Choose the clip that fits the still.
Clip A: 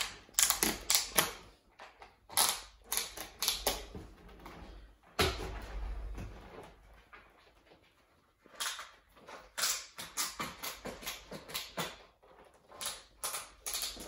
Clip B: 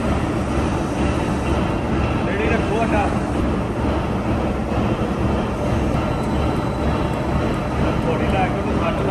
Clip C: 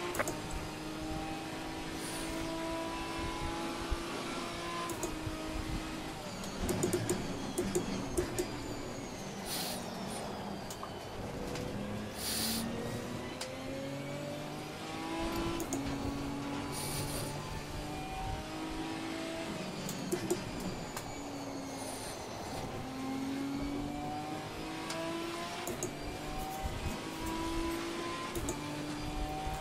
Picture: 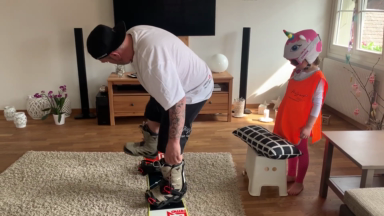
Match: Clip A